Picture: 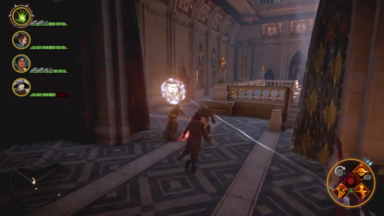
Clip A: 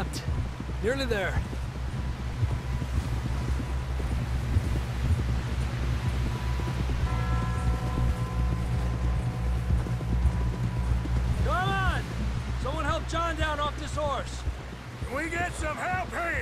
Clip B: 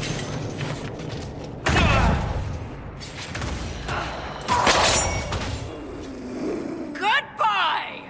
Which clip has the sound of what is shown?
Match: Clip B